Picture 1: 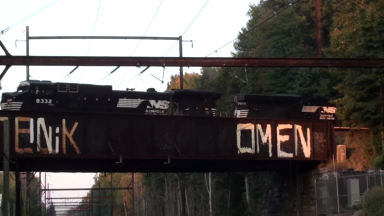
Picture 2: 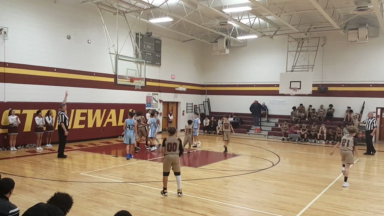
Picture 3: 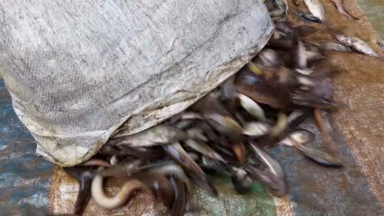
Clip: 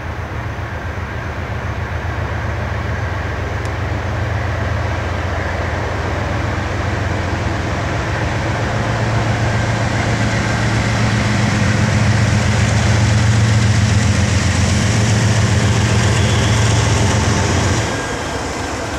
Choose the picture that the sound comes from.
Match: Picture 1